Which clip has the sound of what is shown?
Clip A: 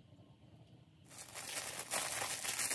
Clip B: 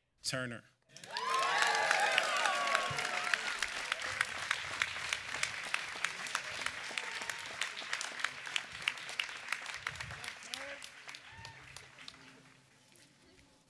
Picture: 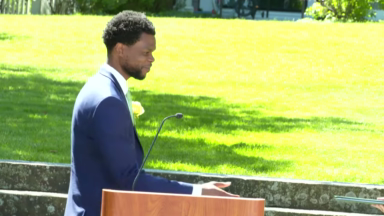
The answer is B